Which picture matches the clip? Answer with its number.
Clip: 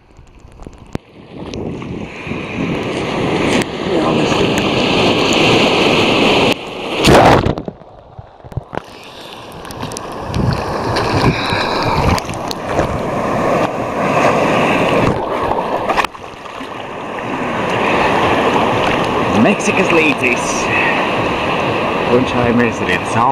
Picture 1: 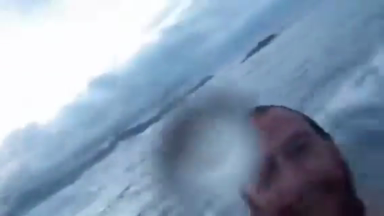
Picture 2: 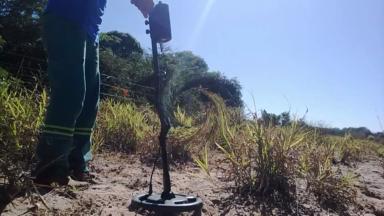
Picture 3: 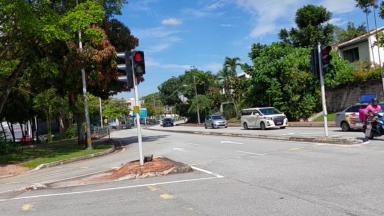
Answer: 1